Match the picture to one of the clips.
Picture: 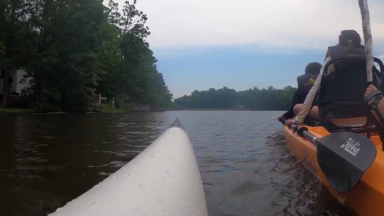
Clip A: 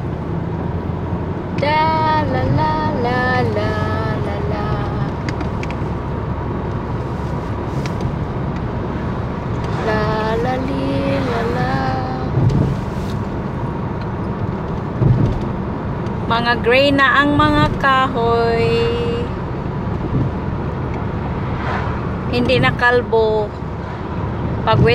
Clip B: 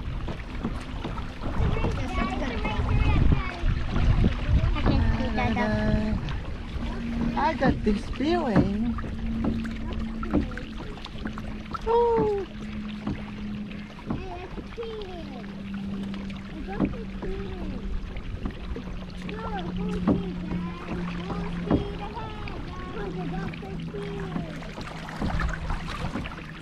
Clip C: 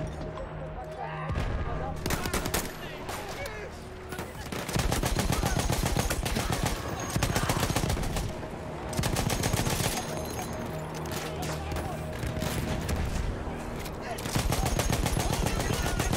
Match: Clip B